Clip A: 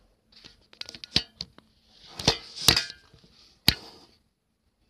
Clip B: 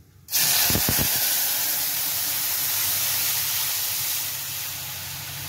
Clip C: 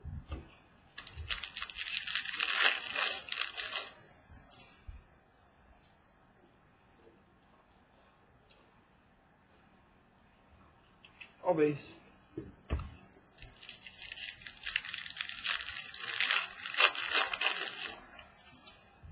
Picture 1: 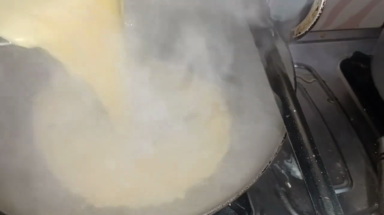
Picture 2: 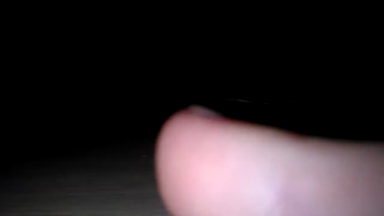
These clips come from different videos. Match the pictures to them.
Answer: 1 B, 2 A